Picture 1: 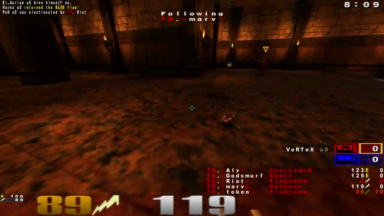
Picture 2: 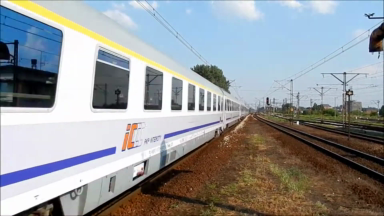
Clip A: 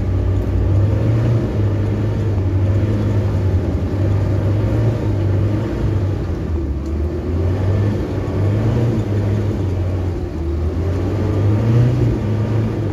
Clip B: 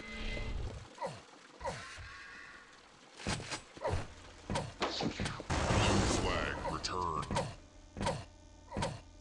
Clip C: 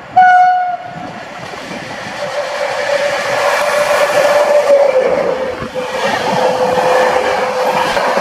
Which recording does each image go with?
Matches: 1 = B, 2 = C